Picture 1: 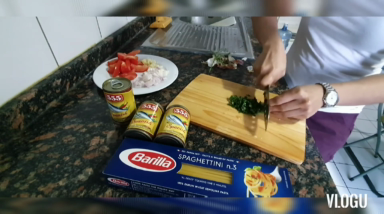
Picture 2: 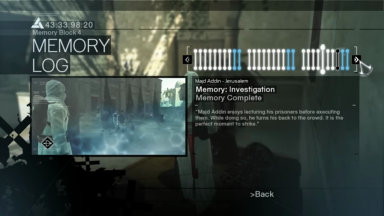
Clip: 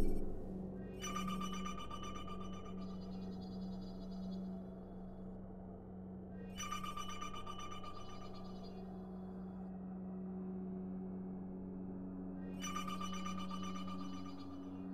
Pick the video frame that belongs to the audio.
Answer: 2